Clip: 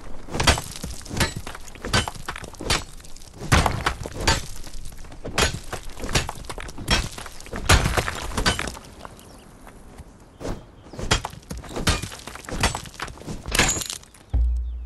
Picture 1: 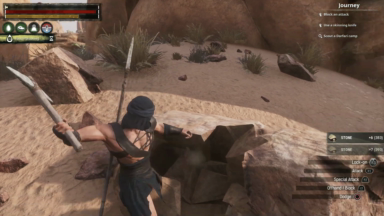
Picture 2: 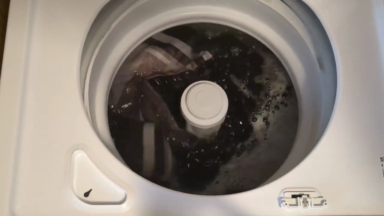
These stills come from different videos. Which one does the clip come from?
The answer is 1